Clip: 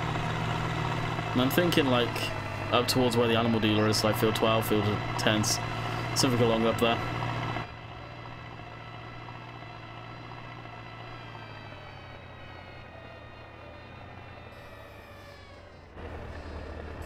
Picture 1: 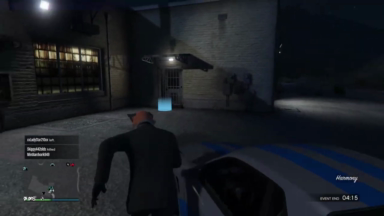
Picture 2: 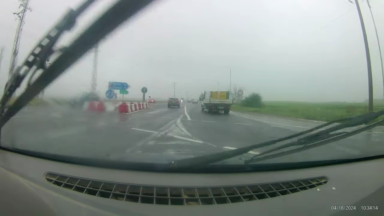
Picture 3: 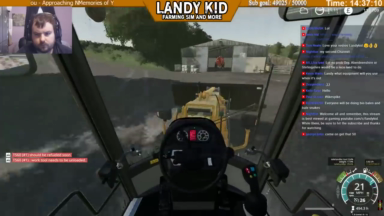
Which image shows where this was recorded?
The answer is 3